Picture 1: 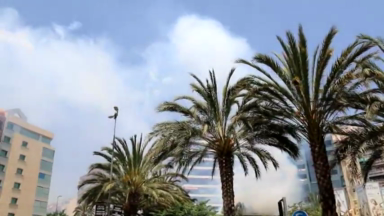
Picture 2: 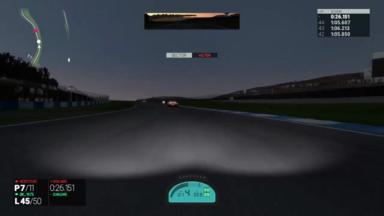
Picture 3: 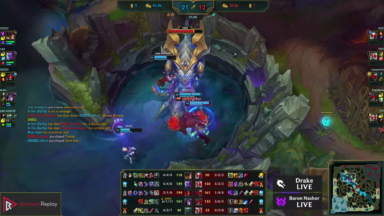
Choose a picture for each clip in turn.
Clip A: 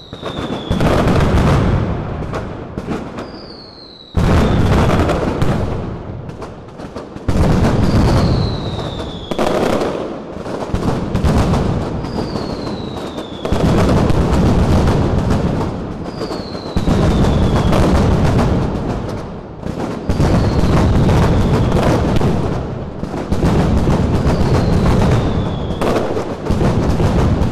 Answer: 1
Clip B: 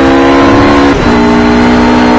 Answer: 2